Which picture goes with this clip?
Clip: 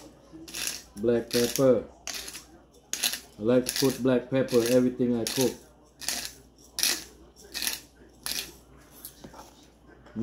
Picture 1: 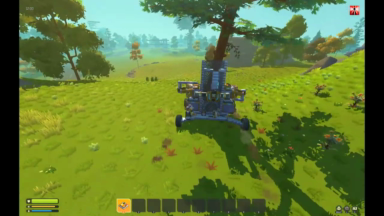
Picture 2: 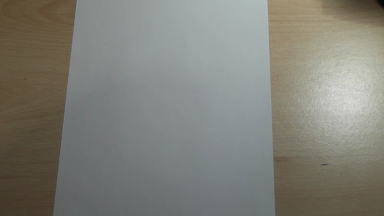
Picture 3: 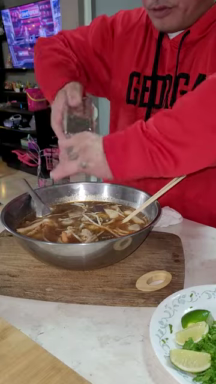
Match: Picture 3